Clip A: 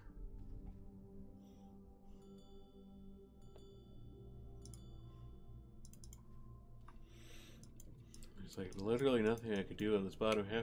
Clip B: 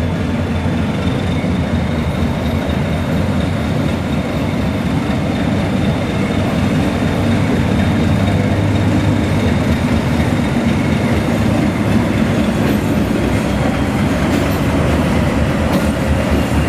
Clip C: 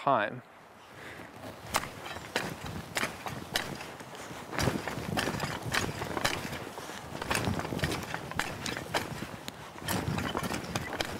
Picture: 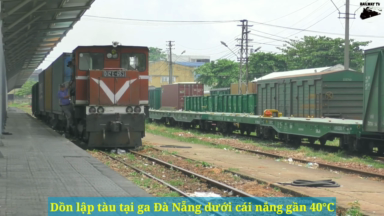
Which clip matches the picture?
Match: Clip B